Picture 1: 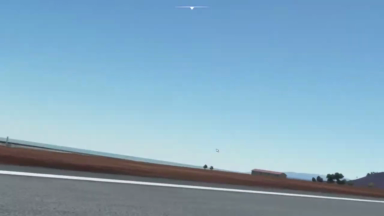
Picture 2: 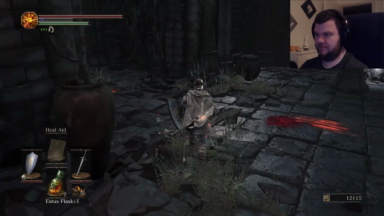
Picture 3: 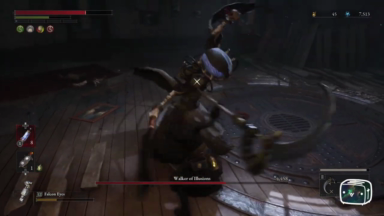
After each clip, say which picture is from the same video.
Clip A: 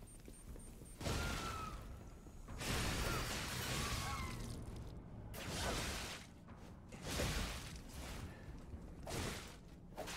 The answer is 3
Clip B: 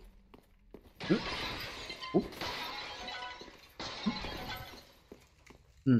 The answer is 2